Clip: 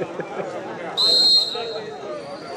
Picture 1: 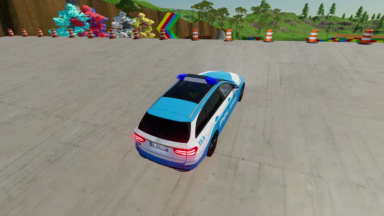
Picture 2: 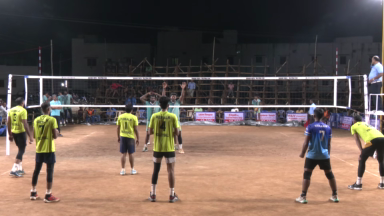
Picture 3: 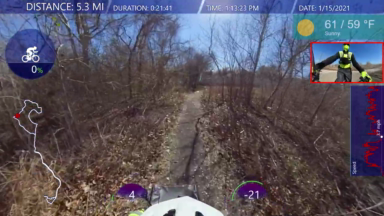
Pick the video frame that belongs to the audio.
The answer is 2